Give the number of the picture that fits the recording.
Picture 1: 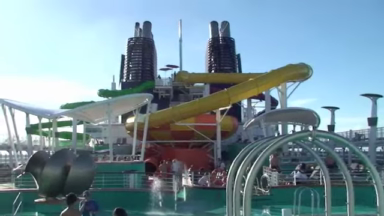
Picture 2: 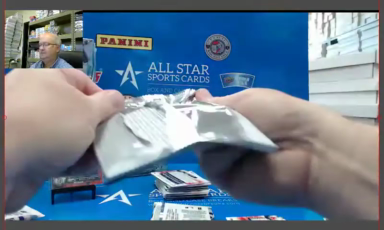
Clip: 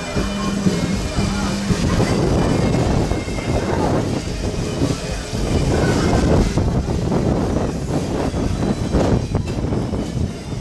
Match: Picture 1